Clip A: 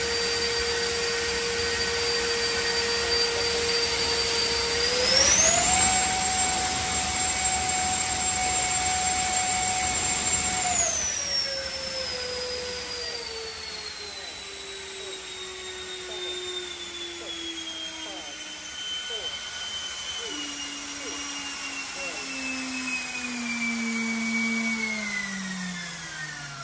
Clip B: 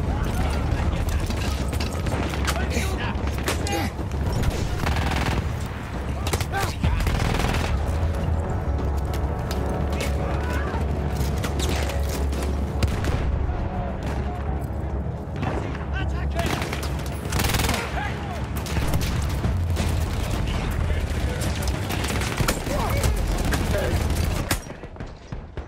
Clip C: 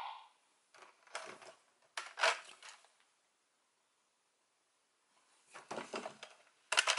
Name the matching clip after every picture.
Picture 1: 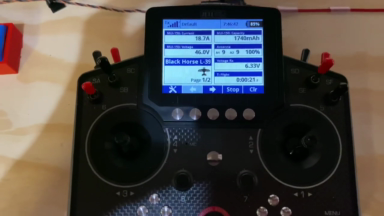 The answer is A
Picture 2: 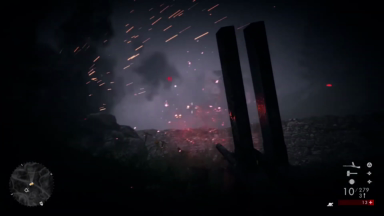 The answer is B